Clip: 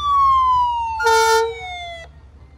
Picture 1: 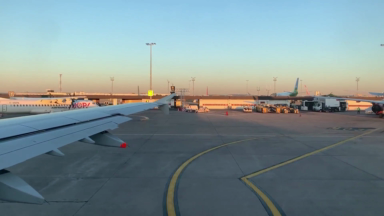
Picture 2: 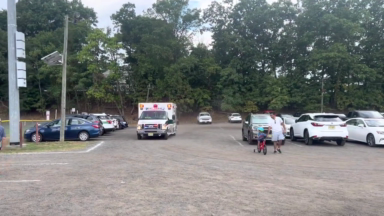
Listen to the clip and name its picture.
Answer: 2